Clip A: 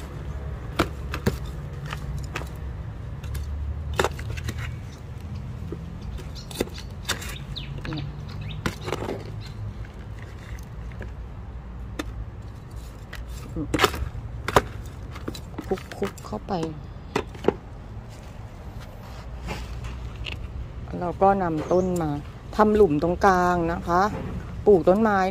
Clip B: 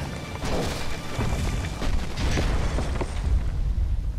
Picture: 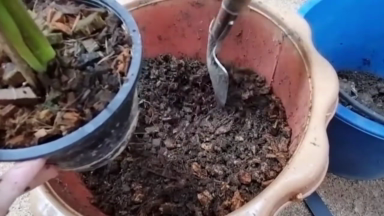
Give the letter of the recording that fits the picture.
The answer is A